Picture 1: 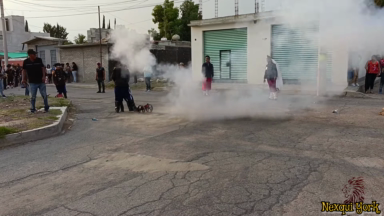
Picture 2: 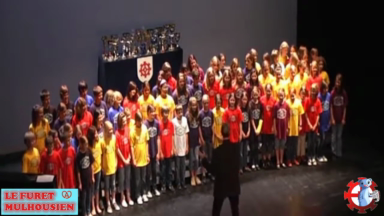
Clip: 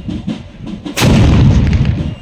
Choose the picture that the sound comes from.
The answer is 1